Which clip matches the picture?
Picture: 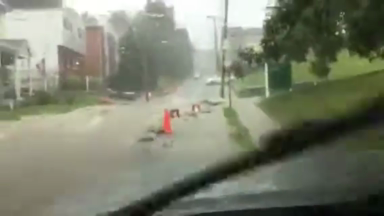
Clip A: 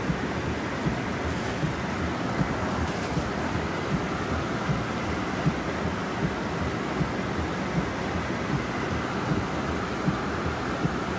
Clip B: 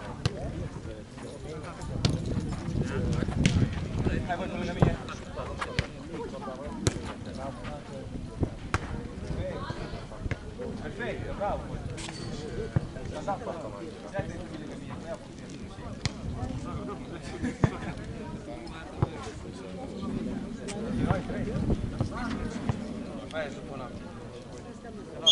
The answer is A